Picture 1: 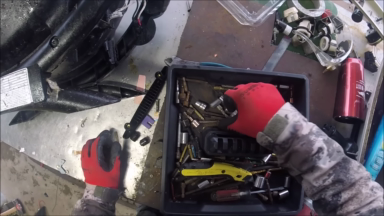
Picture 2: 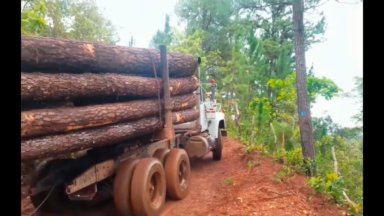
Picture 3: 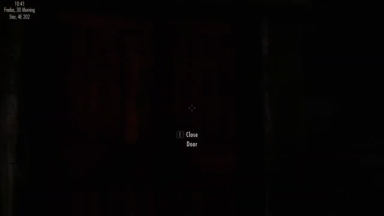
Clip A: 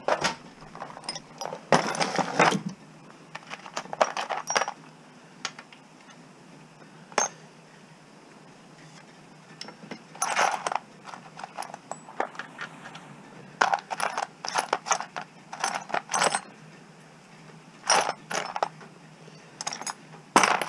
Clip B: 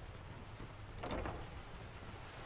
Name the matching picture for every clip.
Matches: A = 1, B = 3